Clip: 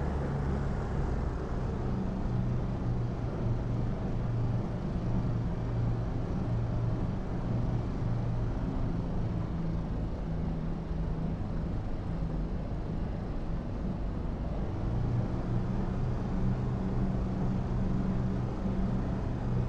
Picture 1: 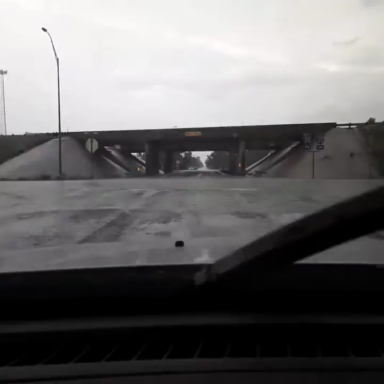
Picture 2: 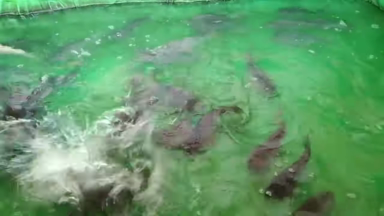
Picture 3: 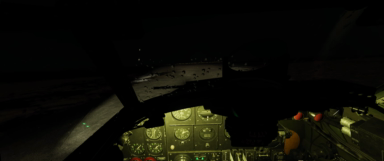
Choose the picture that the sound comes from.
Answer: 3